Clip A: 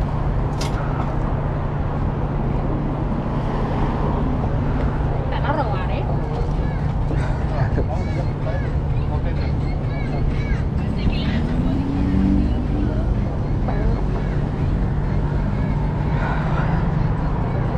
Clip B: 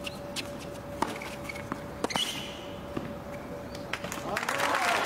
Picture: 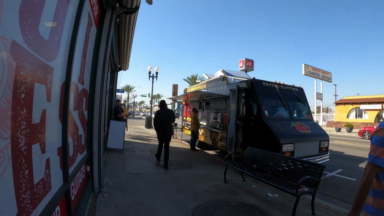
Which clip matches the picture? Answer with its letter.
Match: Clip A